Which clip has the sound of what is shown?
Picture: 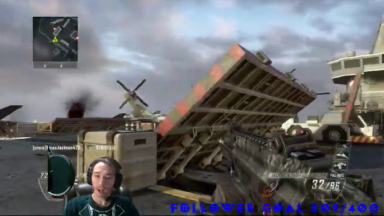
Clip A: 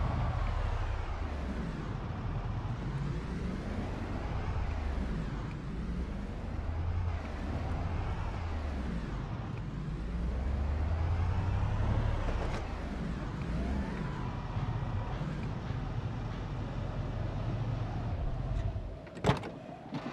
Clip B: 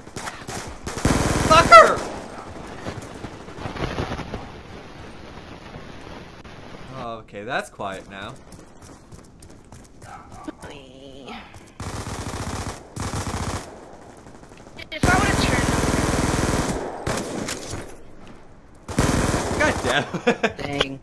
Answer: B